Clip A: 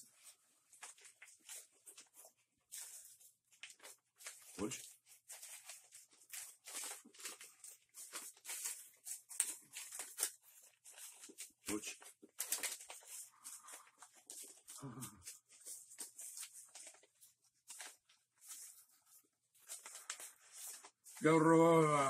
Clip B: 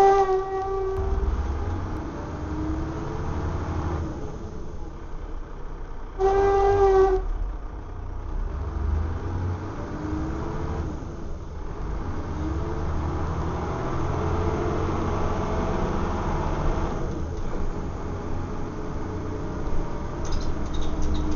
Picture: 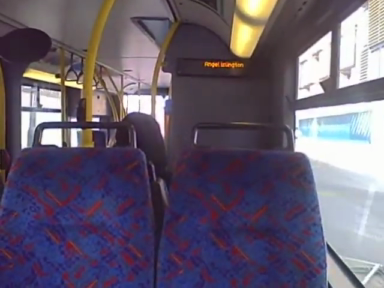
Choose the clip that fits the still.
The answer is B